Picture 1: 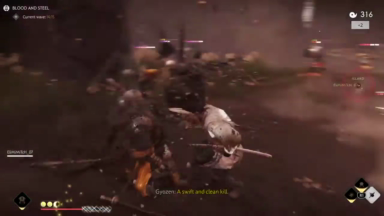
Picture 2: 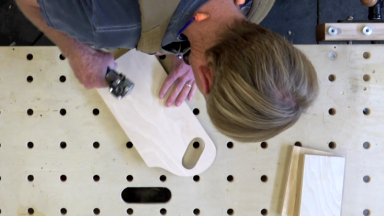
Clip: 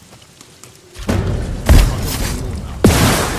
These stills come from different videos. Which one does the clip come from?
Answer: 1